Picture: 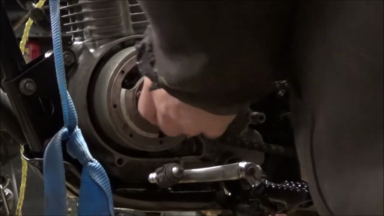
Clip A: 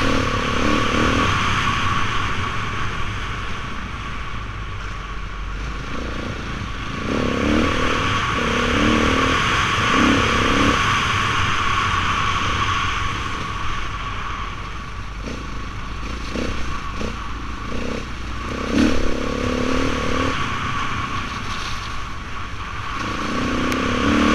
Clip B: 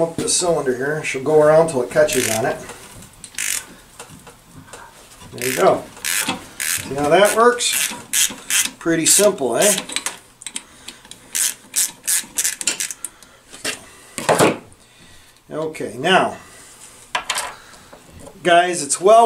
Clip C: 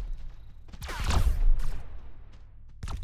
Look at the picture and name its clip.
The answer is B